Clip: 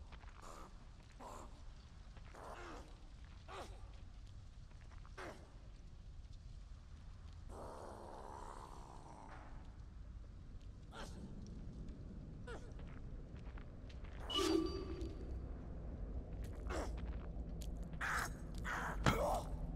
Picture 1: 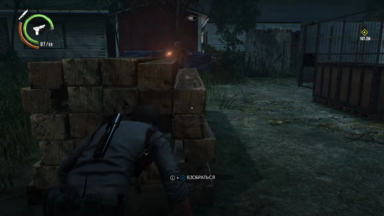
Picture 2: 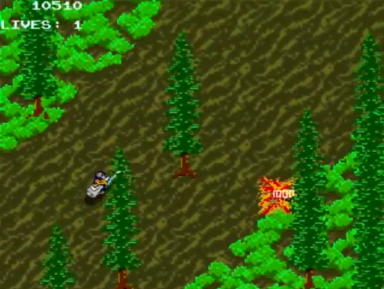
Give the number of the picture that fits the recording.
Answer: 1